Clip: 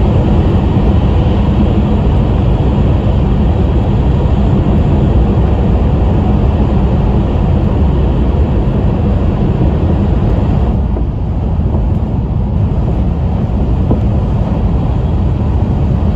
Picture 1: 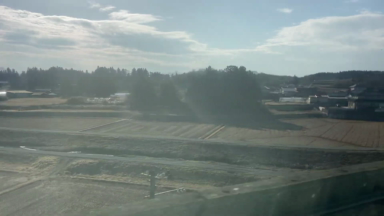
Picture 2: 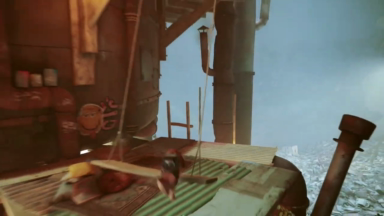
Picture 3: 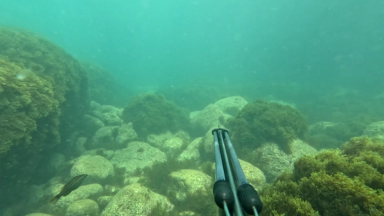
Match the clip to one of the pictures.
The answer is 1